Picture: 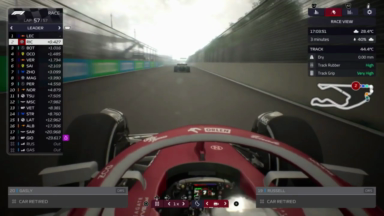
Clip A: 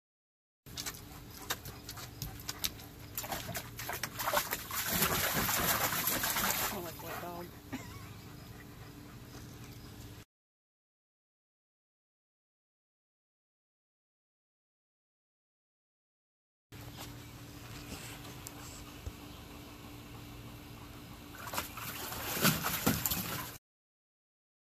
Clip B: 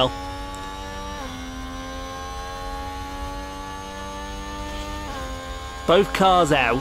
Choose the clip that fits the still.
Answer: B